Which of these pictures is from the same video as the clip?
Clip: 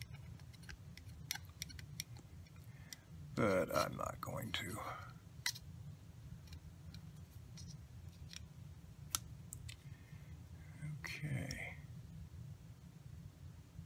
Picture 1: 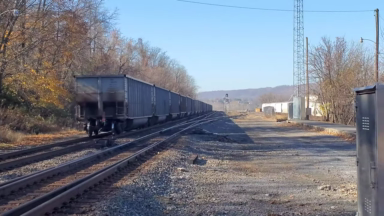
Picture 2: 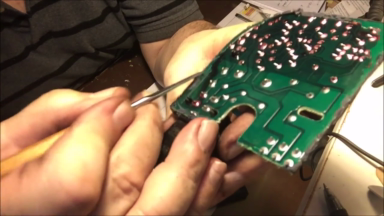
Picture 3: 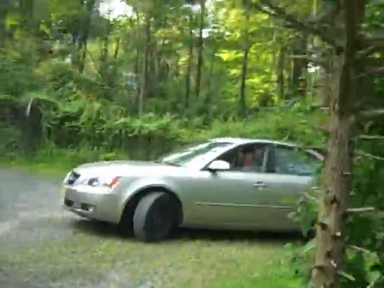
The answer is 2